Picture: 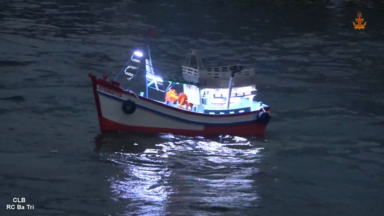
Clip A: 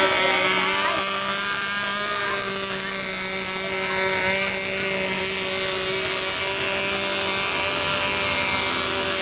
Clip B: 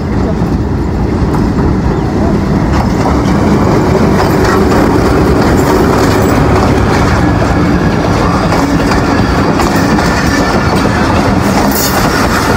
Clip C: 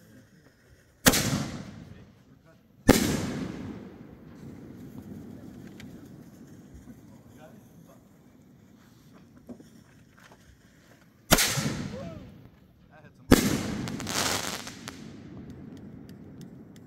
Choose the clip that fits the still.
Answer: A